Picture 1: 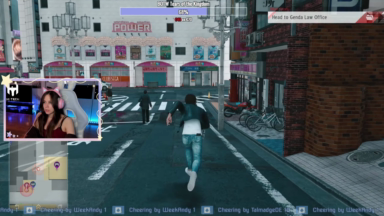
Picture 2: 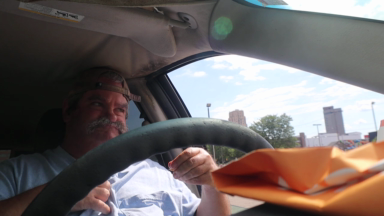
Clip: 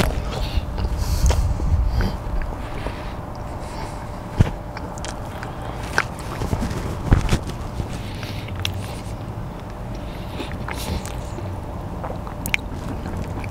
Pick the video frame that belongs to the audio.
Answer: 2